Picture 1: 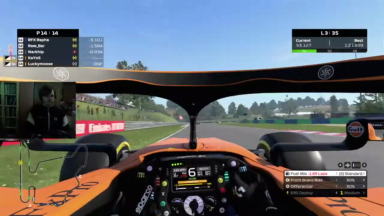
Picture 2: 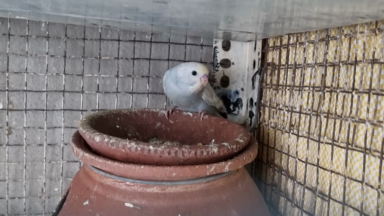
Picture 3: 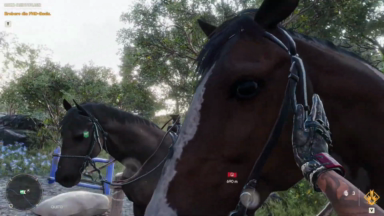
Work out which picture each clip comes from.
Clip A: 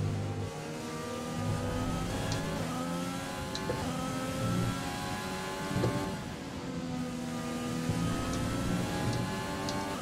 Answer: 1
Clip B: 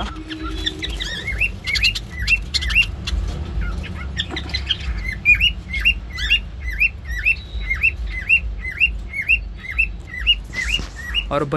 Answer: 2